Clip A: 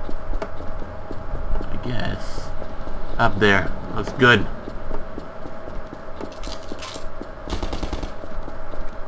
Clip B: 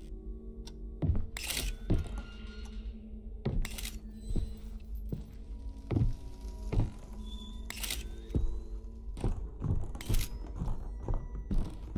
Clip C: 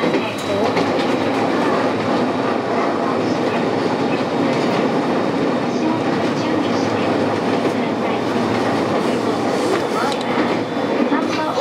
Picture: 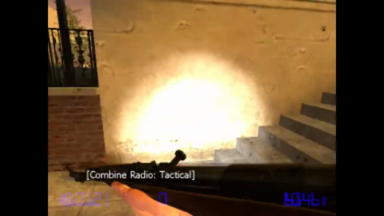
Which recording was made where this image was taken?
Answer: A